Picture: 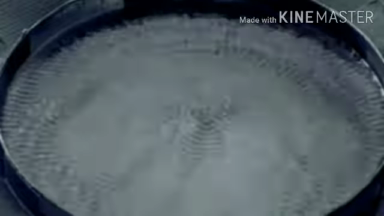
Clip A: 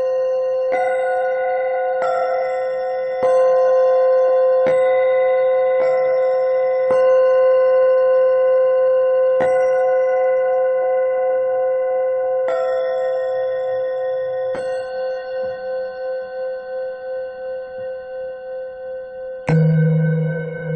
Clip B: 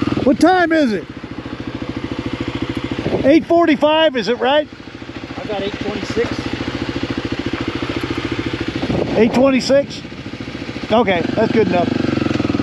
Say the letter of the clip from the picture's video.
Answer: A